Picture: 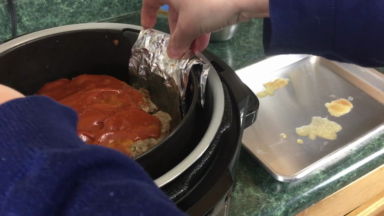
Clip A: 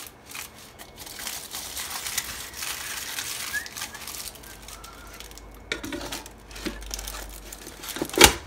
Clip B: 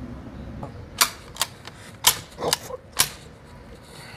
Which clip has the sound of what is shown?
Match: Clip A